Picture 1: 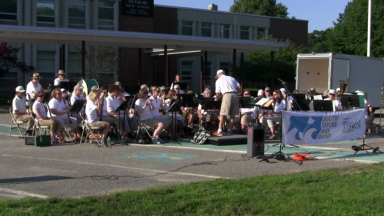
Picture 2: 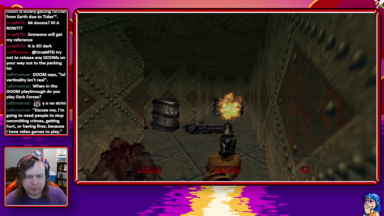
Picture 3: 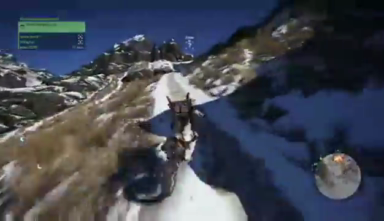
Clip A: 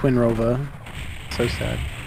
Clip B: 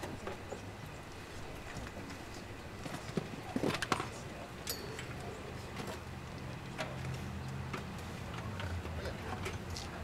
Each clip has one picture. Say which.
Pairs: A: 2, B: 1